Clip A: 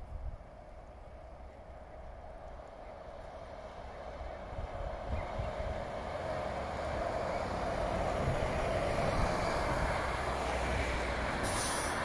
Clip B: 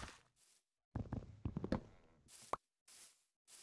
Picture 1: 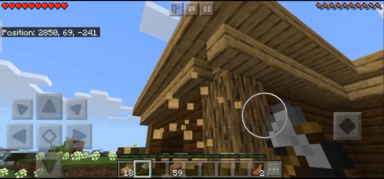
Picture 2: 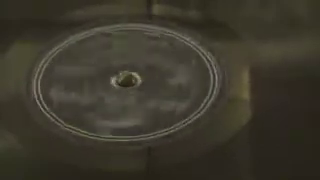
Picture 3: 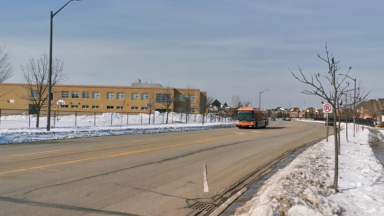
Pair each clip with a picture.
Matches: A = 3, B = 1